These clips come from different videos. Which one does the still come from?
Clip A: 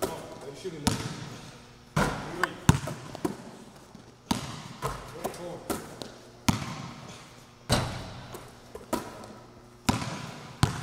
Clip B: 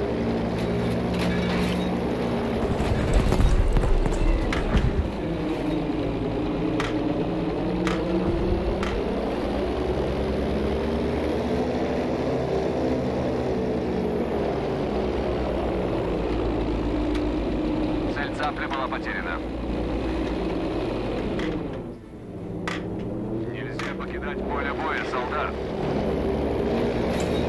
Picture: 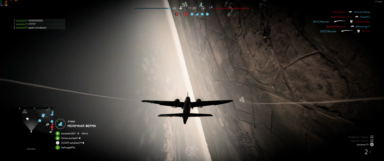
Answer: B